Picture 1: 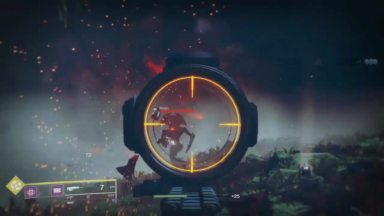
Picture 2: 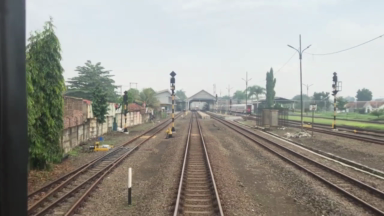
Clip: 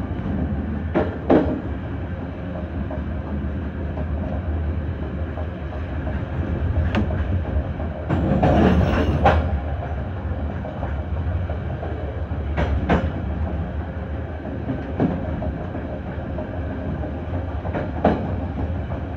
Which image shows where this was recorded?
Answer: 2